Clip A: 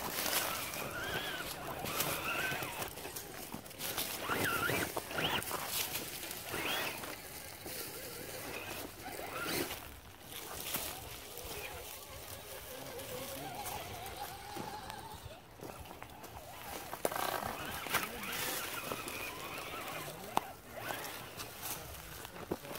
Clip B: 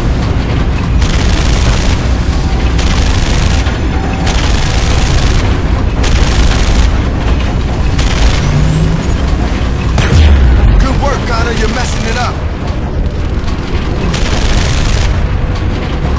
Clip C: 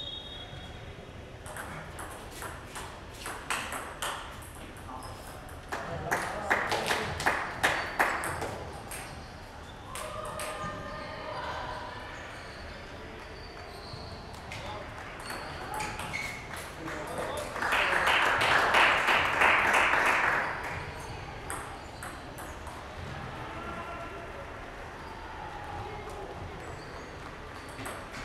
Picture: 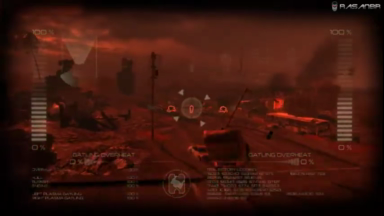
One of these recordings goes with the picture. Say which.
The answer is B